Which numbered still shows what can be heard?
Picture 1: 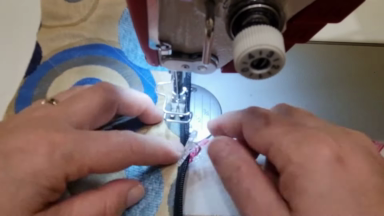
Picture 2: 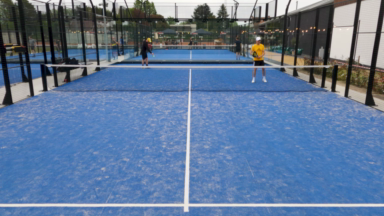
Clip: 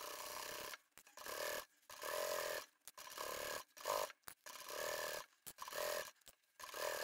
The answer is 1